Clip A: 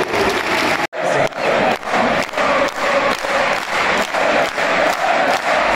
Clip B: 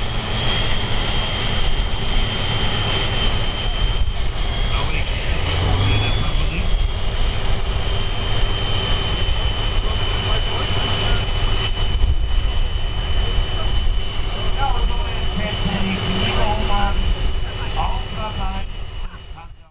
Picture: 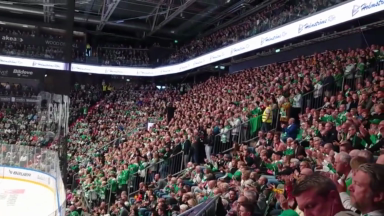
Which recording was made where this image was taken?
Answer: A